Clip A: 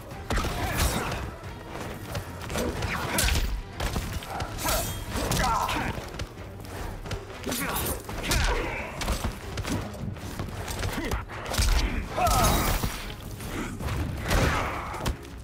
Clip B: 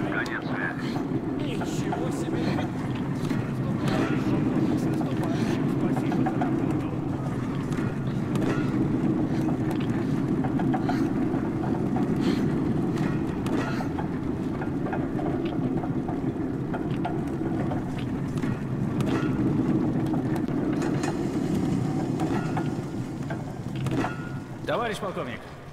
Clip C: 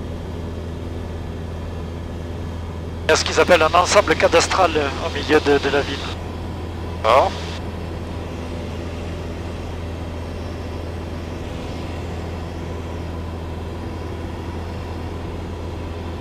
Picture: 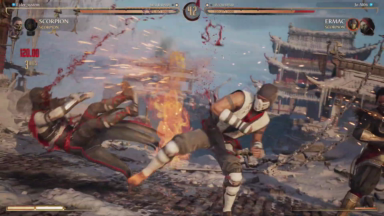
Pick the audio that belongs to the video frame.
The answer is A